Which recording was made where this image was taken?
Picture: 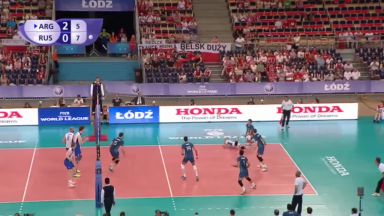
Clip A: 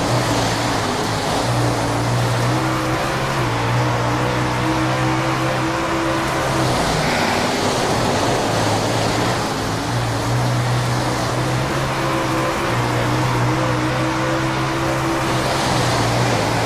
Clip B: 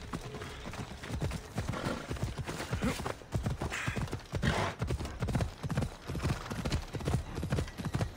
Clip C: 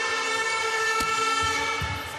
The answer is C